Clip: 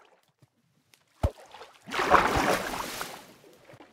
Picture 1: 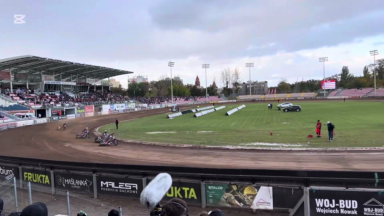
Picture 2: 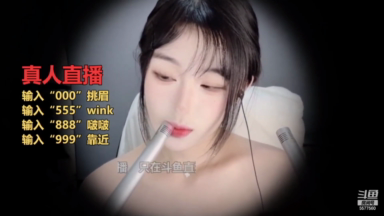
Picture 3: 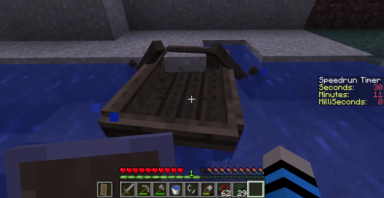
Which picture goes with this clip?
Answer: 3